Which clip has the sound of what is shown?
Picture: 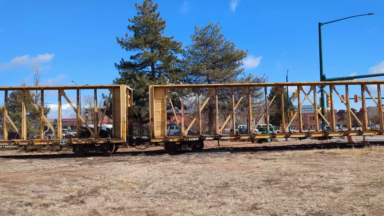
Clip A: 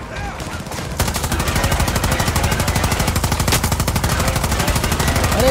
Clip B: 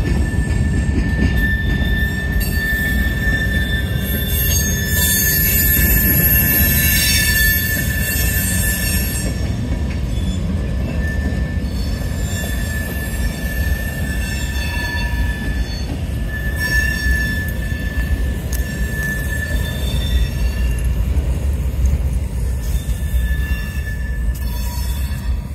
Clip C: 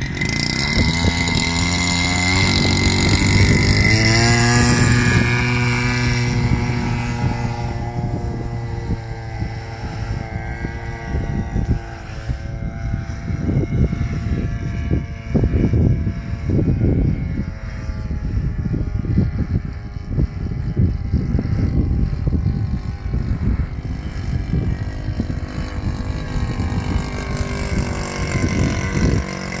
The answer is B